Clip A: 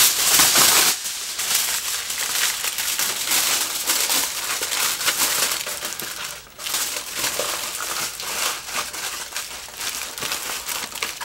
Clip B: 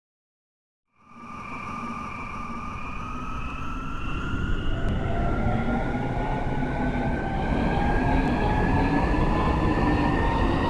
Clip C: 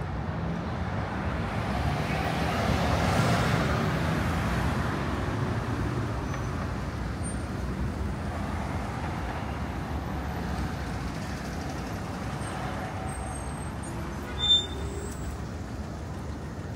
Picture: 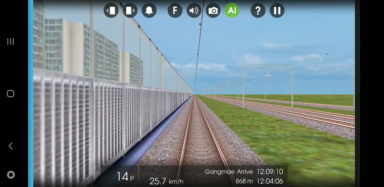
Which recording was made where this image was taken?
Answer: B